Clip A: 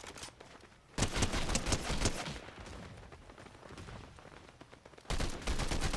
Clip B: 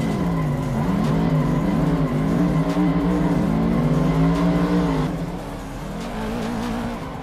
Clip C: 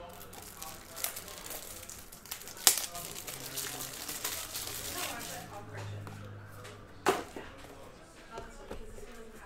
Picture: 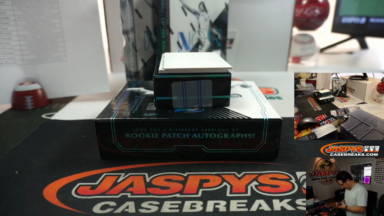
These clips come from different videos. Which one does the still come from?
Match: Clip C